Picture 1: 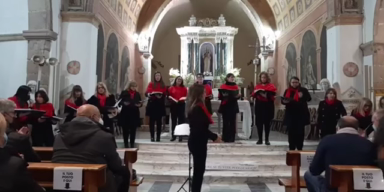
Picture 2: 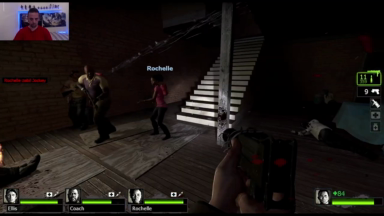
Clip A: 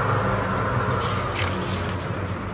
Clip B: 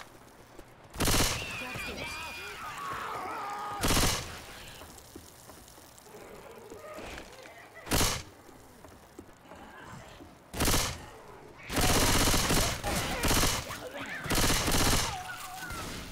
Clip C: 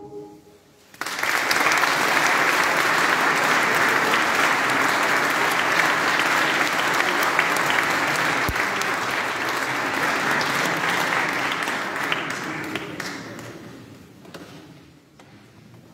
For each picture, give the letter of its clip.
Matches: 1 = C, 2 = B